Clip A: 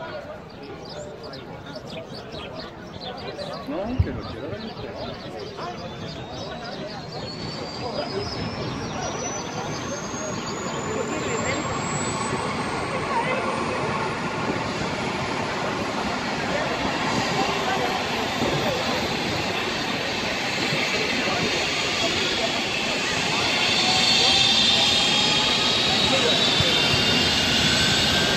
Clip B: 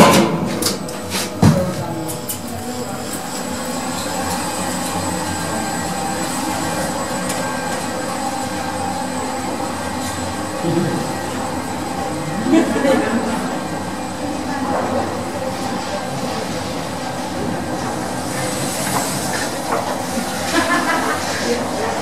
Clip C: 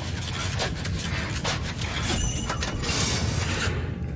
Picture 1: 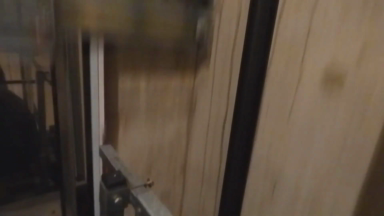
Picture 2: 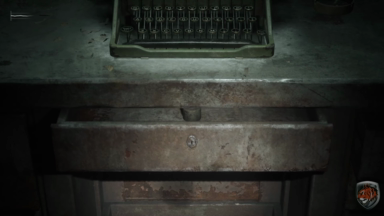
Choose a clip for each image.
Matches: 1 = B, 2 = C